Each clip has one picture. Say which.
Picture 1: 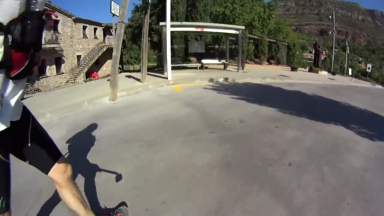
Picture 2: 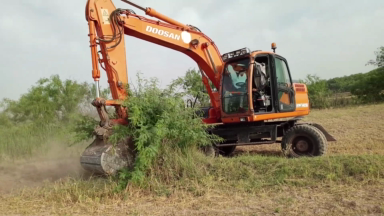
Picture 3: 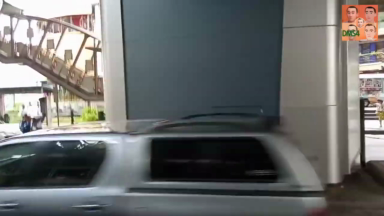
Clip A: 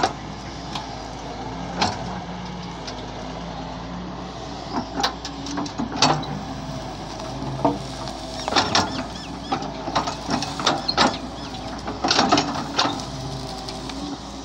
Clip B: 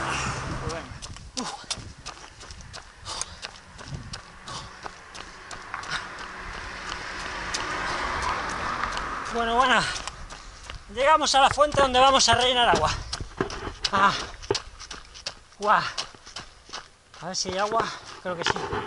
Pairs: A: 2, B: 1